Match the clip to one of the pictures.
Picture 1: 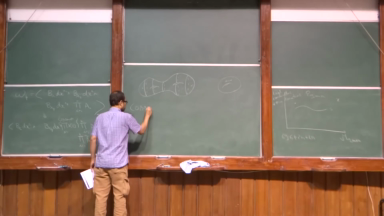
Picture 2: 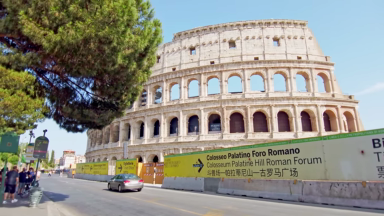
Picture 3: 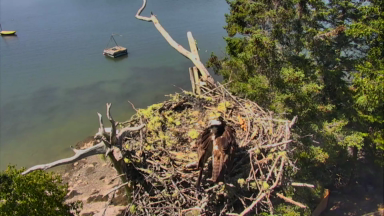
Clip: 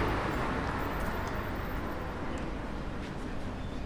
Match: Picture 2